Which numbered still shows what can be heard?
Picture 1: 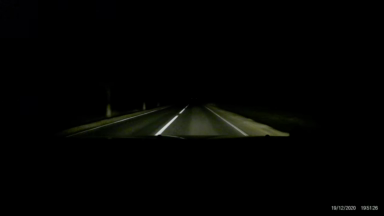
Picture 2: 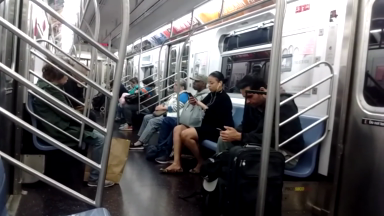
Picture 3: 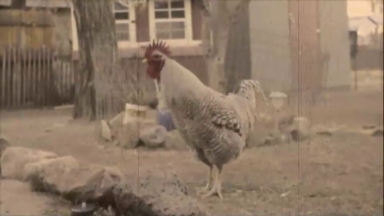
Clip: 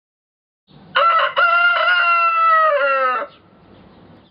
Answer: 3